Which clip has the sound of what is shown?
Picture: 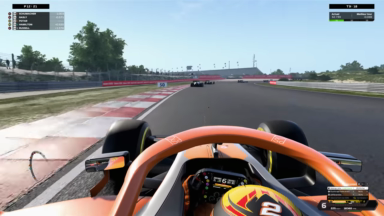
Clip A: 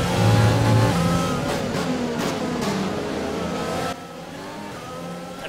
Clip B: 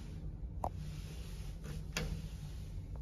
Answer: A